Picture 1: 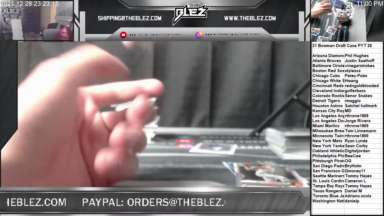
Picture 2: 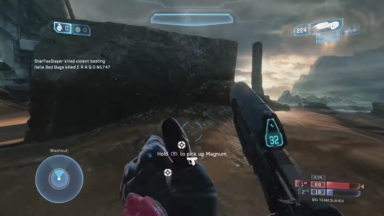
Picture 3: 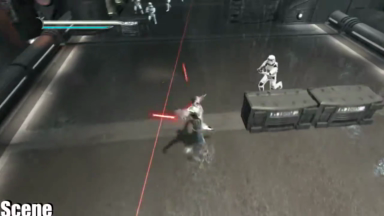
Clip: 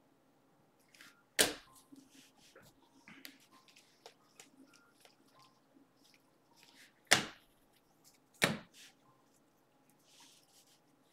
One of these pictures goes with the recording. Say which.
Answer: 1